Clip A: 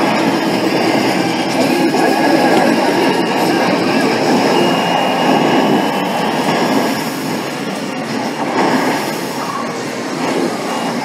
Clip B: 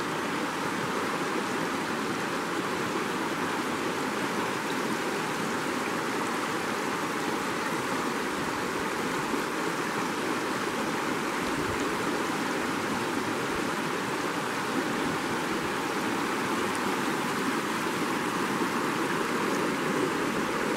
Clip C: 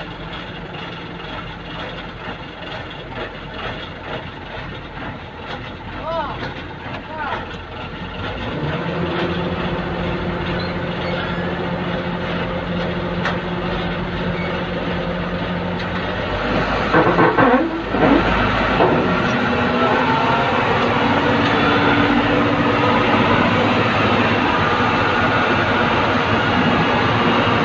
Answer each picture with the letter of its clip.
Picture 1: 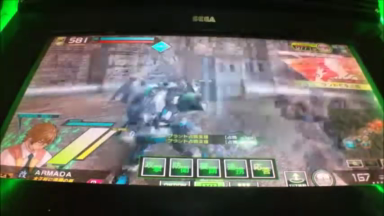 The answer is A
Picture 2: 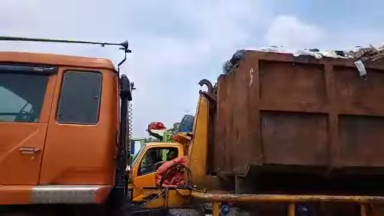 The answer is C